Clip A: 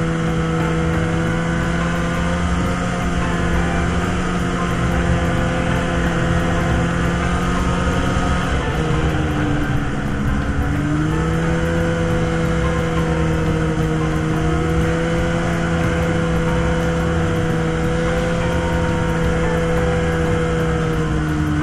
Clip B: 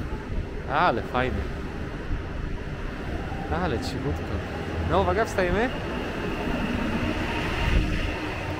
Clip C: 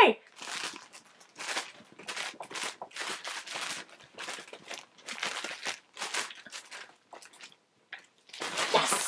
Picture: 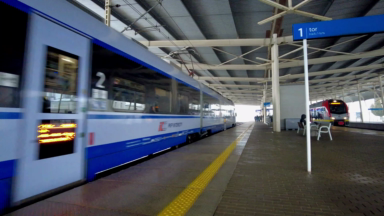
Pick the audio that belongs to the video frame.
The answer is B